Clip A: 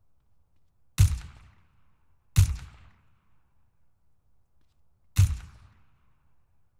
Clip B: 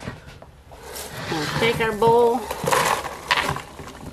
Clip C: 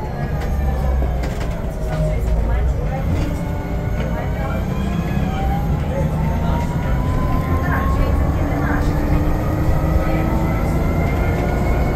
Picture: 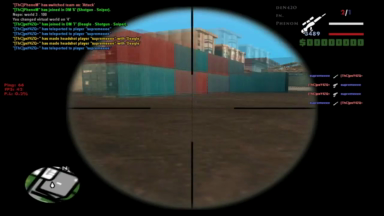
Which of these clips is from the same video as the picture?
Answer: A